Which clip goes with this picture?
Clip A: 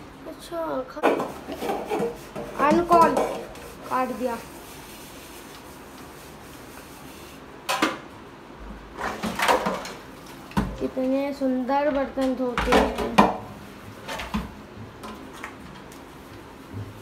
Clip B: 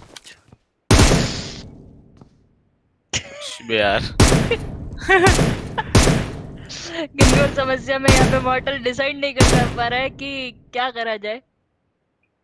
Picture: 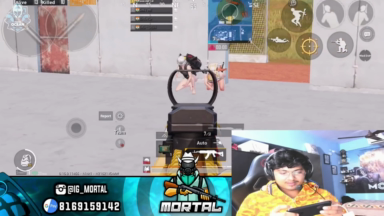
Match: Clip B